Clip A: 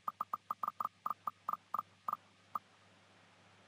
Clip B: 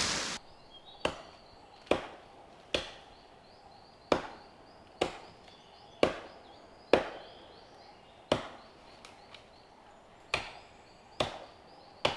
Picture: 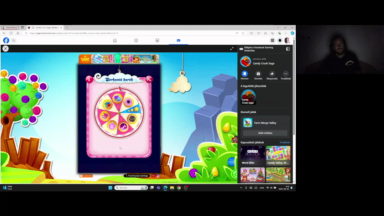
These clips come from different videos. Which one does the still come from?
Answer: A